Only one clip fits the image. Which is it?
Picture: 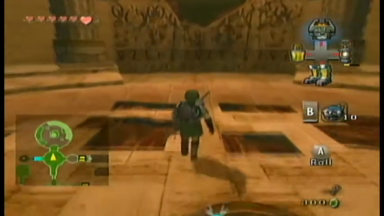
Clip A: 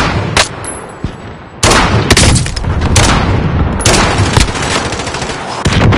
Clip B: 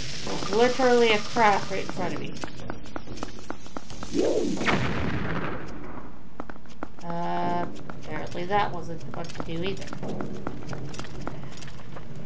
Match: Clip B